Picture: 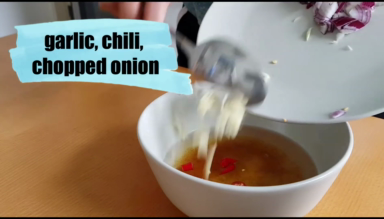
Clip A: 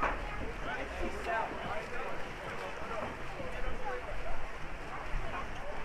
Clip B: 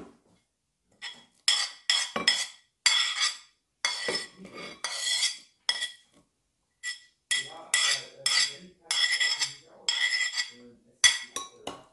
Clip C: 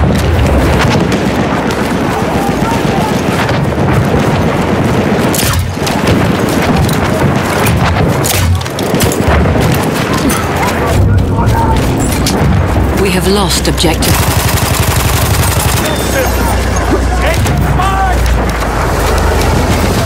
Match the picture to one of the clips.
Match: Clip B